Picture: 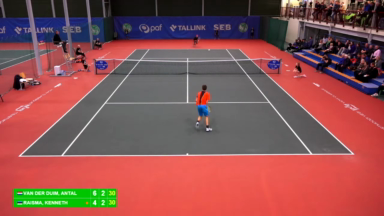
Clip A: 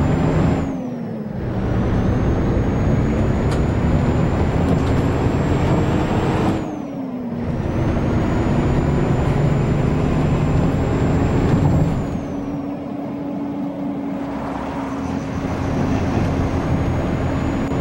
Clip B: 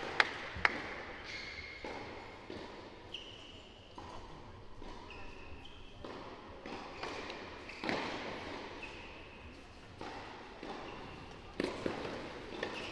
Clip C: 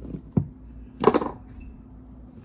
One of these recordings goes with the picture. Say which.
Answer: B